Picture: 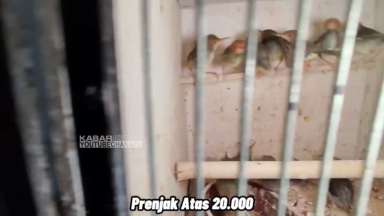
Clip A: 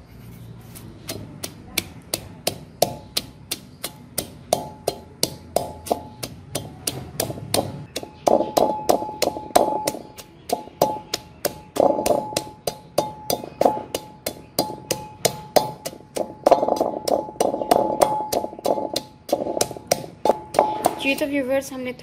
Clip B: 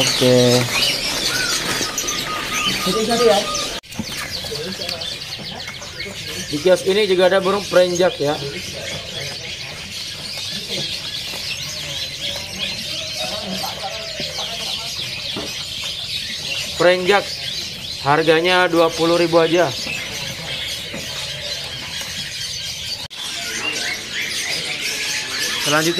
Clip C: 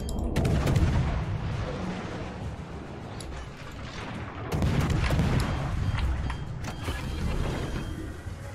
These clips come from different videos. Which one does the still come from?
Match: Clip B